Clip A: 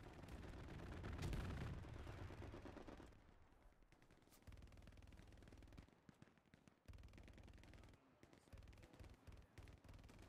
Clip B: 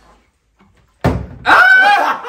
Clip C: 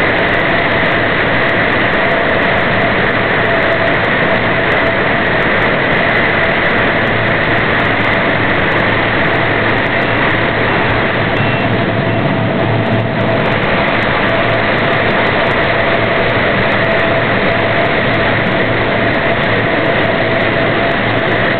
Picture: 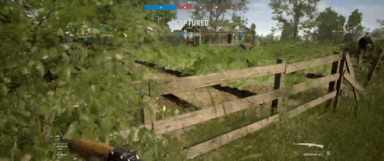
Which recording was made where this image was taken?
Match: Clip A